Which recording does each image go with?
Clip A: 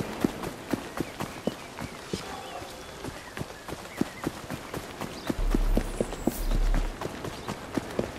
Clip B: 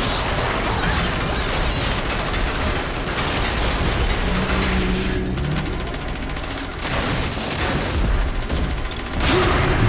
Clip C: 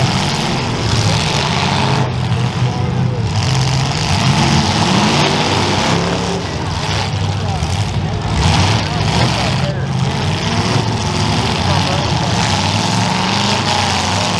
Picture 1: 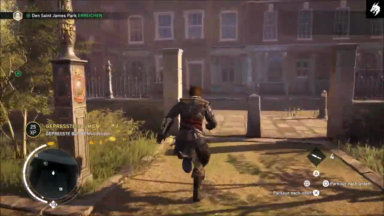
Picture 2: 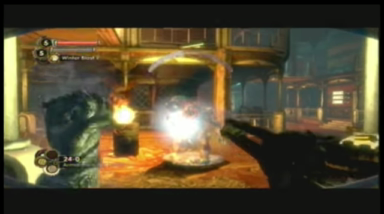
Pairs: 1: A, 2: B